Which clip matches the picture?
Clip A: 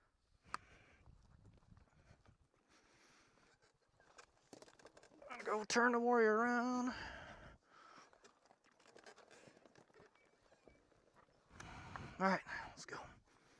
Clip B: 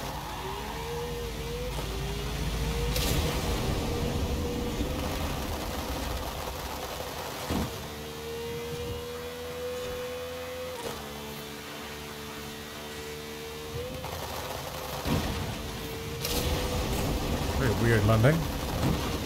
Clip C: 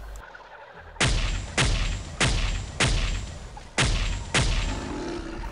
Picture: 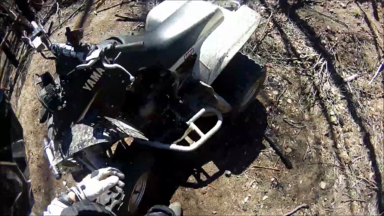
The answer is A